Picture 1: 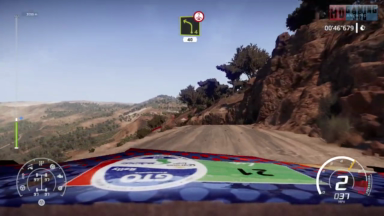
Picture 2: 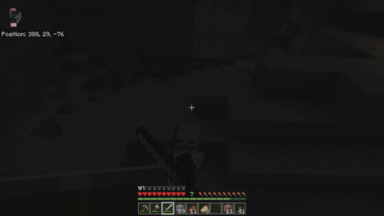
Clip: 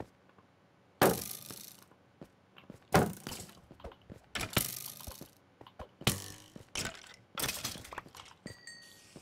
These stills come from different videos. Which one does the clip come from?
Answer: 2